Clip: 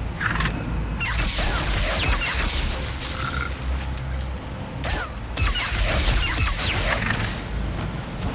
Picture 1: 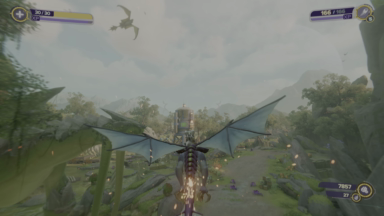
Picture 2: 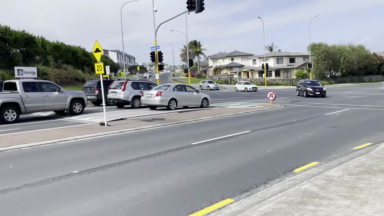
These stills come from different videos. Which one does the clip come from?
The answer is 1